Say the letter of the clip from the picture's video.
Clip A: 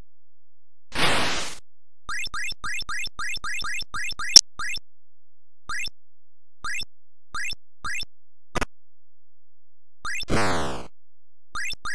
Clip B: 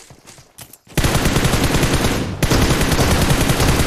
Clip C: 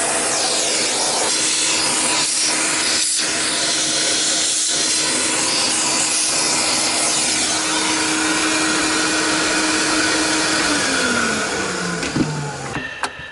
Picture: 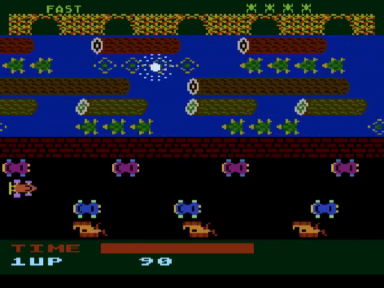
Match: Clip A